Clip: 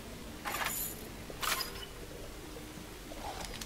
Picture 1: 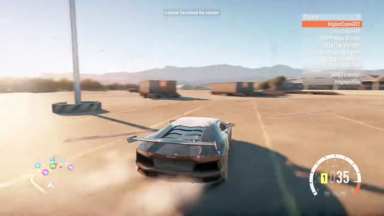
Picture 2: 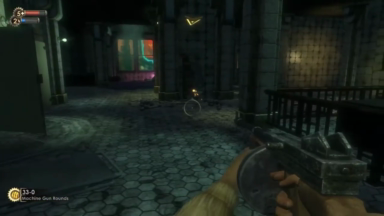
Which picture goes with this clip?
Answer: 2